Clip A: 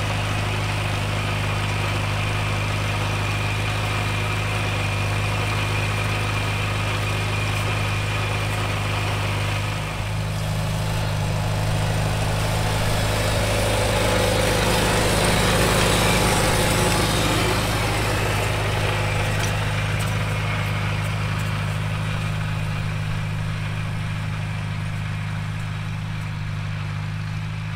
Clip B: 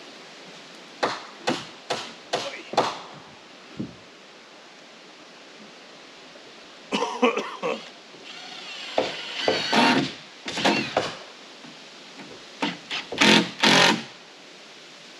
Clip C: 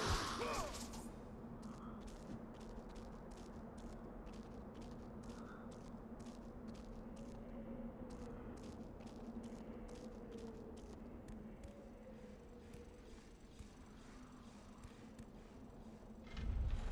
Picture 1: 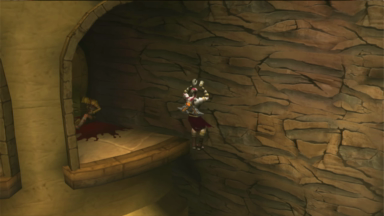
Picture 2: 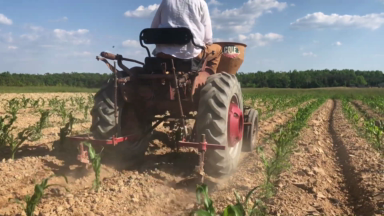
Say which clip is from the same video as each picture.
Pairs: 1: C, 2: A